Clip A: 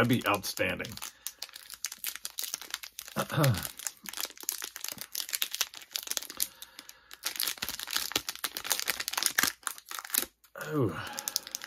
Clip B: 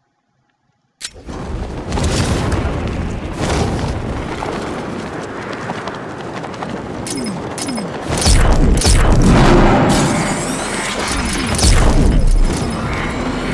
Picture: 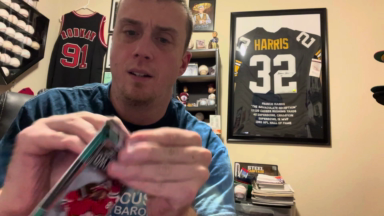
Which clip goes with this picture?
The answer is A